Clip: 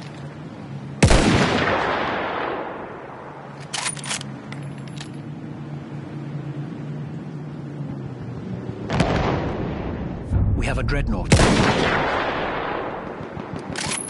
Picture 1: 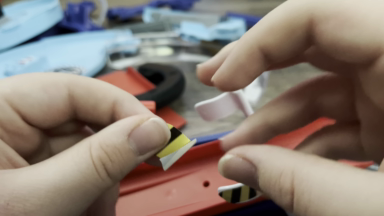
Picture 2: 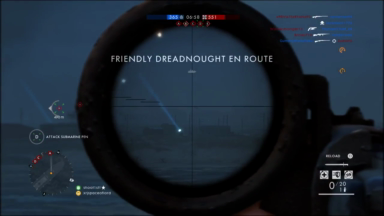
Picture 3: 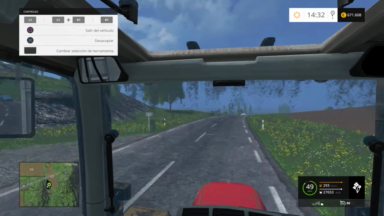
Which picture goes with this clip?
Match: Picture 2